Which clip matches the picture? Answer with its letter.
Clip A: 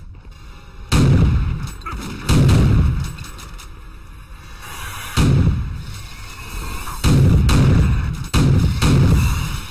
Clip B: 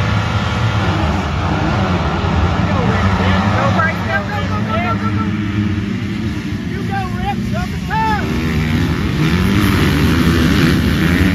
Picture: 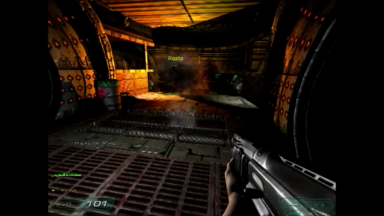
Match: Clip A